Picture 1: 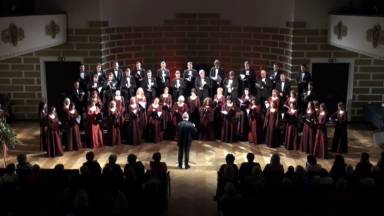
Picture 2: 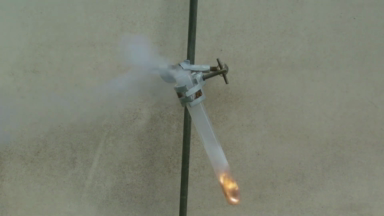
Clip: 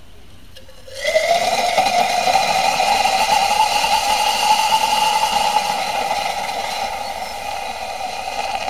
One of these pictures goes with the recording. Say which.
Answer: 2